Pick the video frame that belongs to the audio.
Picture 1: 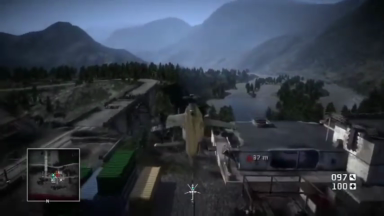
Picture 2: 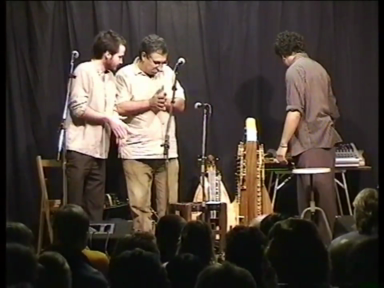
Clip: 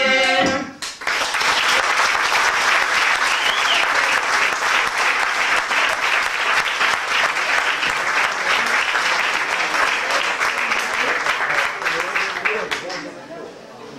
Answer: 2